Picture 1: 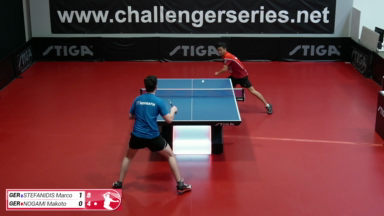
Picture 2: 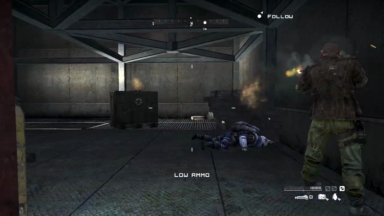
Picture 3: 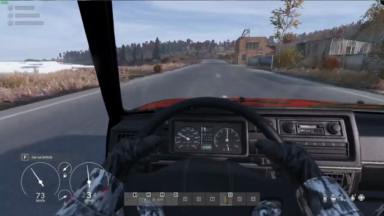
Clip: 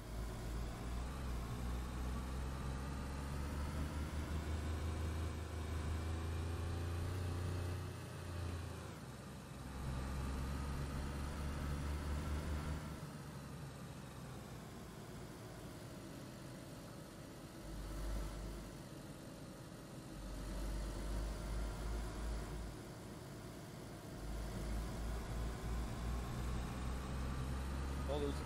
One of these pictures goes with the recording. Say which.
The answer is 3